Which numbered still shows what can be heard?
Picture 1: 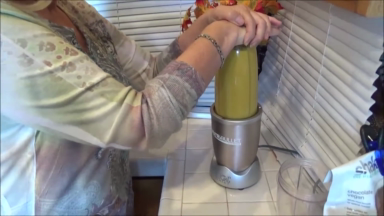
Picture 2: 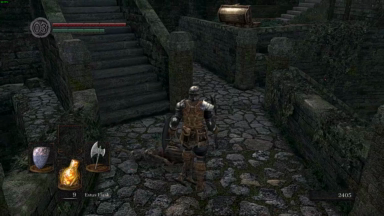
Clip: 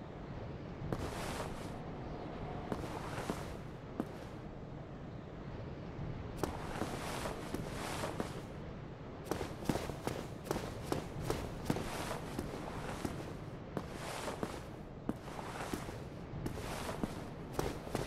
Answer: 2